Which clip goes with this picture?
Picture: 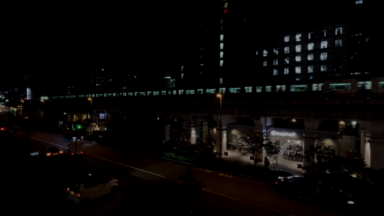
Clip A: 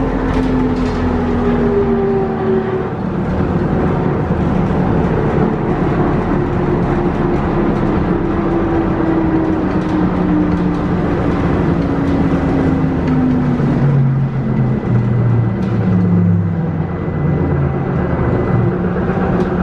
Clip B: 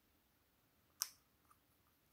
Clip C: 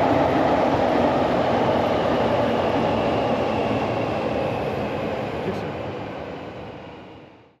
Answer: C